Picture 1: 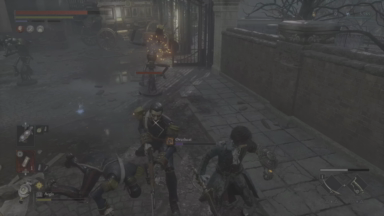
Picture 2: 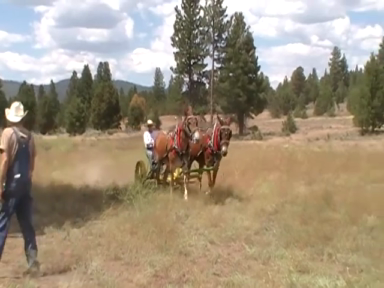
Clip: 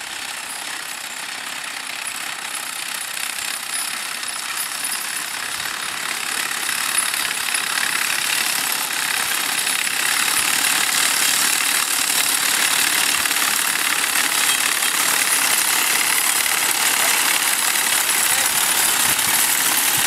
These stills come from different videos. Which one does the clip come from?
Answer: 2